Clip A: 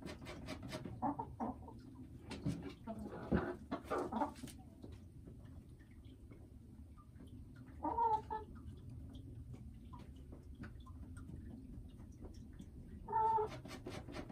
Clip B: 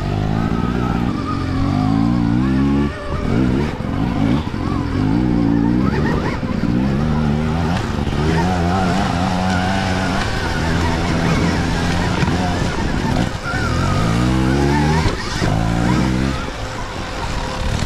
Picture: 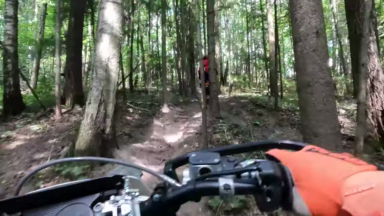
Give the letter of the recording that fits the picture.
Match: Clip B